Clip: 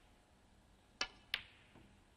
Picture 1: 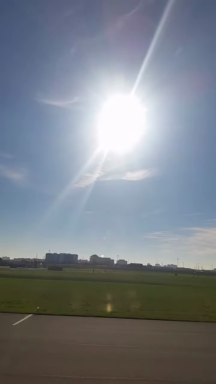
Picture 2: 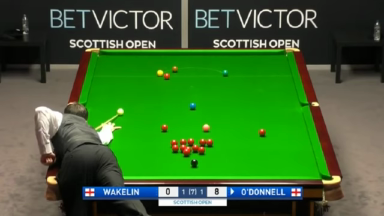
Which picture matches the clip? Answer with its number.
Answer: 2